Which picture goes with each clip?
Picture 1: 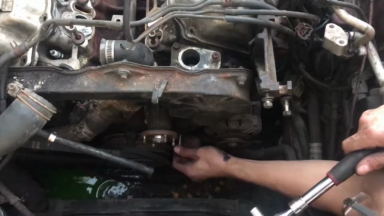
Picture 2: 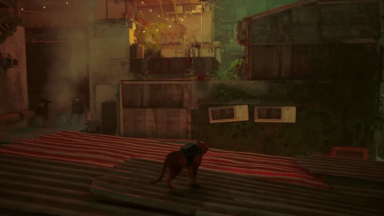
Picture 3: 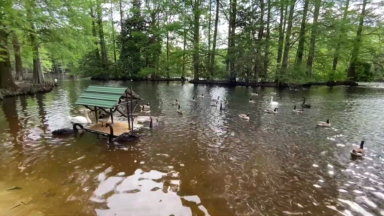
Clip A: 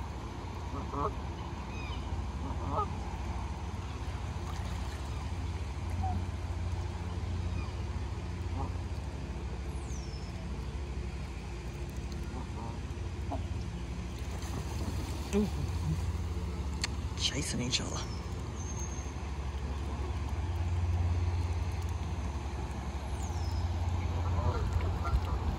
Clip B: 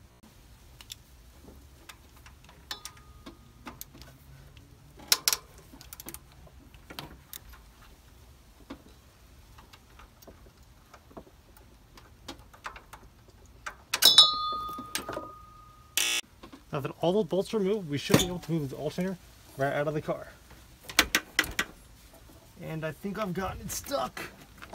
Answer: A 3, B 1